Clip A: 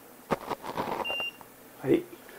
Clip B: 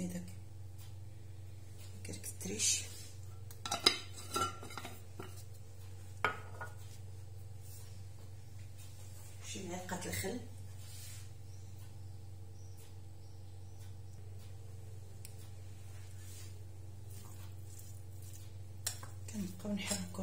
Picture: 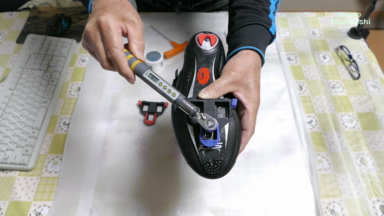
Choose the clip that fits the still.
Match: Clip A